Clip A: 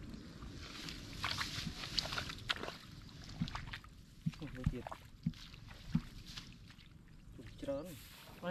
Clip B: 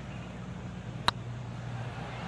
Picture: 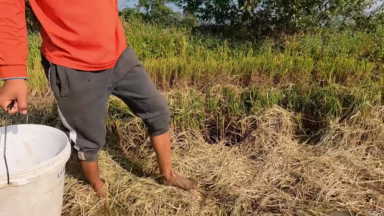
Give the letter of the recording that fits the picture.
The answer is A